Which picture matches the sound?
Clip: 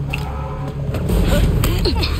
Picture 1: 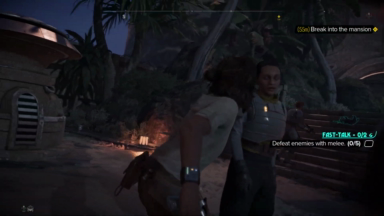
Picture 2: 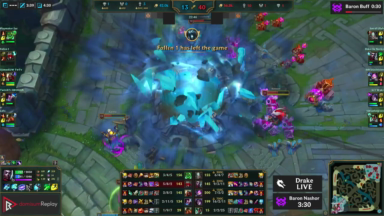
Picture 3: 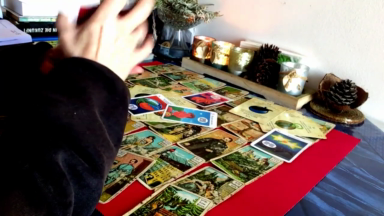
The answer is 1